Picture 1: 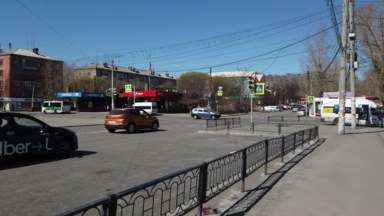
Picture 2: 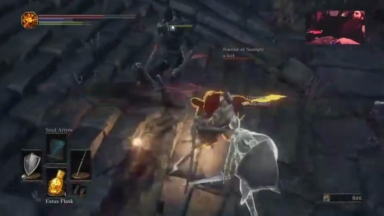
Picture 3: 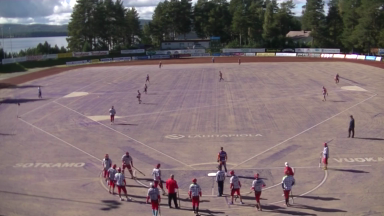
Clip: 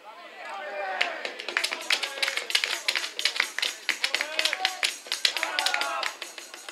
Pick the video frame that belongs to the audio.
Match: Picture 3